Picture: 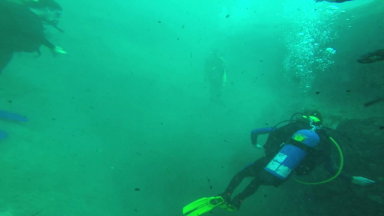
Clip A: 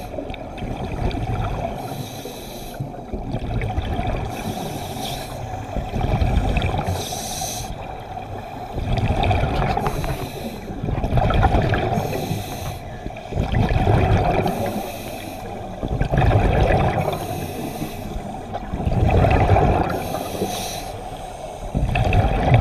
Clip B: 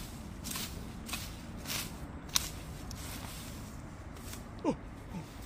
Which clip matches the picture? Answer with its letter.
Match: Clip A